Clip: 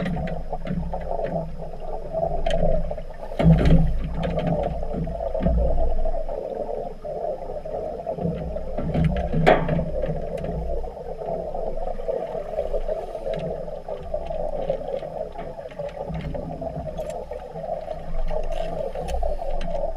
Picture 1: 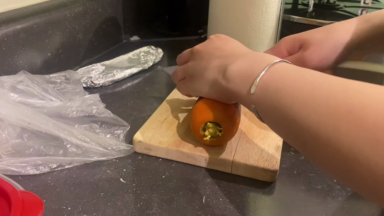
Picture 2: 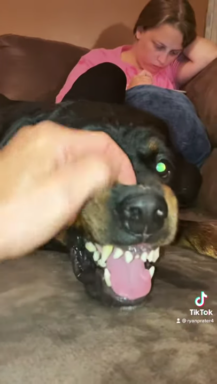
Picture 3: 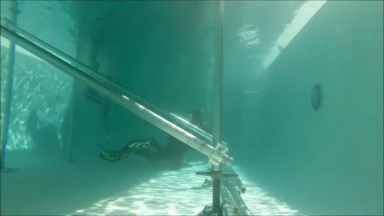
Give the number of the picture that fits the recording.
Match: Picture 3